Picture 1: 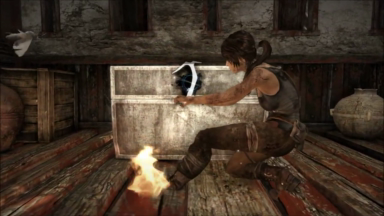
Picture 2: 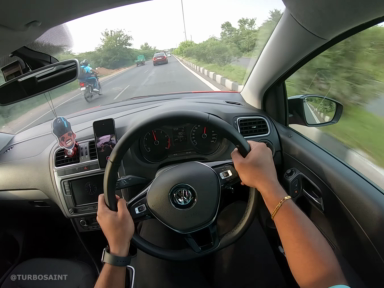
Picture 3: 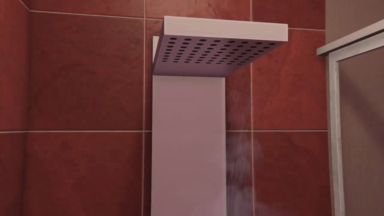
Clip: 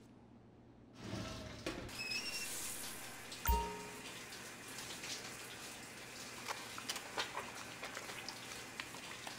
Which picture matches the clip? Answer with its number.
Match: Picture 3